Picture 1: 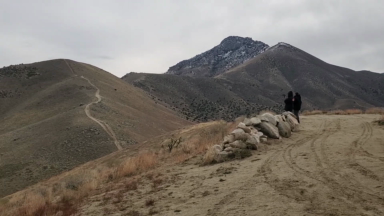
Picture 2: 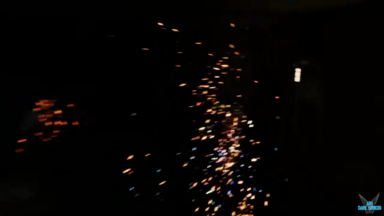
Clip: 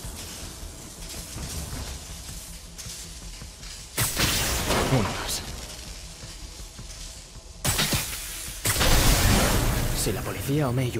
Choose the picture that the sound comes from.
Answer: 2